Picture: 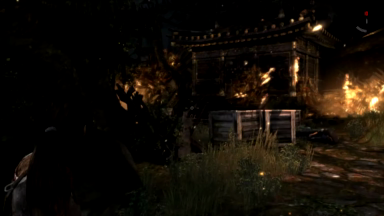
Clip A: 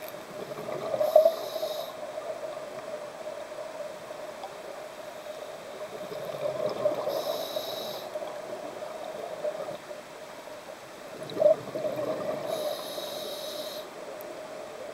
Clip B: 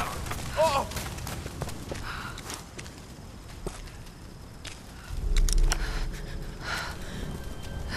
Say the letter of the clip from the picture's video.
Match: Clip B